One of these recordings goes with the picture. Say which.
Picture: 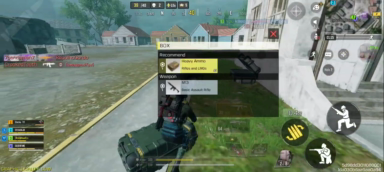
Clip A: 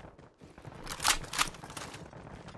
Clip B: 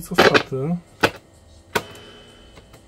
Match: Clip A